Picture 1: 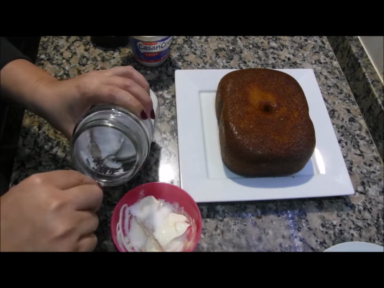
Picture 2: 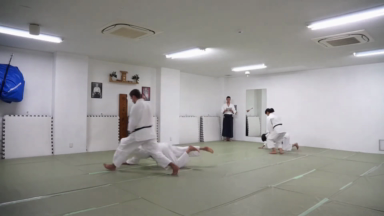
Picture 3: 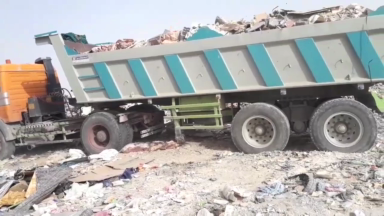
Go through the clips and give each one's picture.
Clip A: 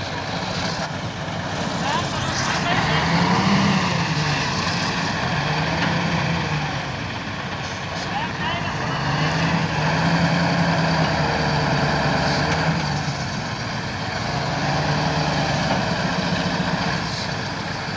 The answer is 3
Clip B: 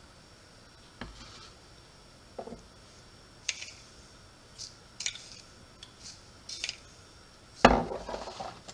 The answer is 1